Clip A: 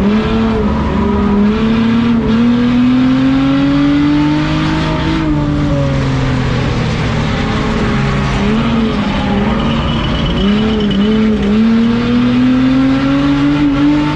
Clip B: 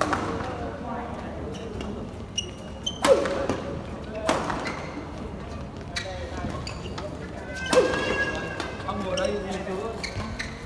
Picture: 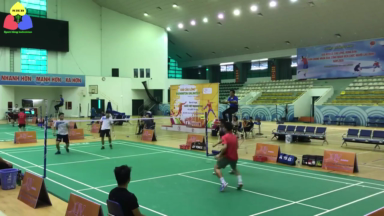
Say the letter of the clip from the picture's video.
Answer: B